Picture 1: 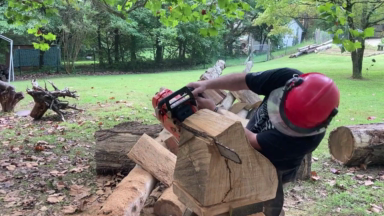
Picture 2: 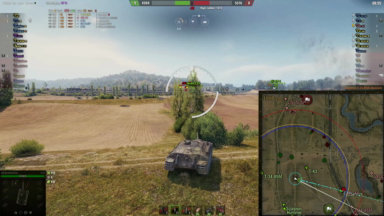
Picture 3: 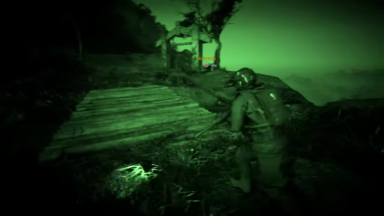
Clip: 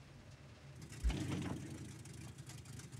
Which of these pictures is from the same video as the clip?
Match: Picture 2